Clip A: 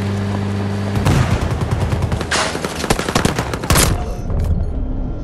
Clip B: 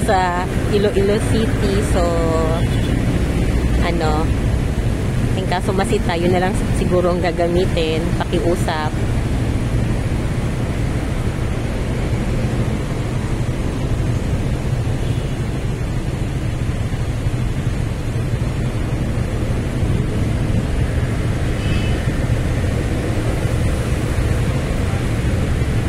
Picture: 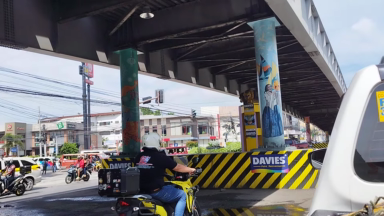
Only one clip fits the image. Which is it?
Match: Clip B